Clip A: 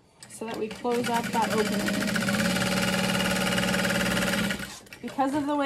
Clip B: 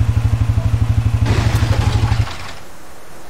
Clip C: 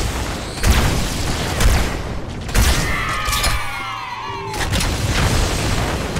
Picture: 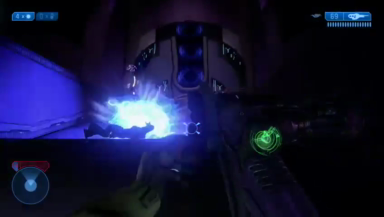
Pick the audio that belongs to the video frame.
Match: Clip C